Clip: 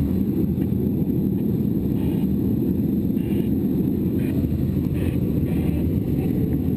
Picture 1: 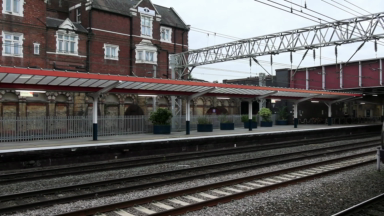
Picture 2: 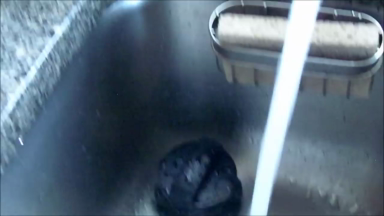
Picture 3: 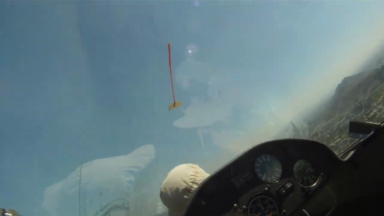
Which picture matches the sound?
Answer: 3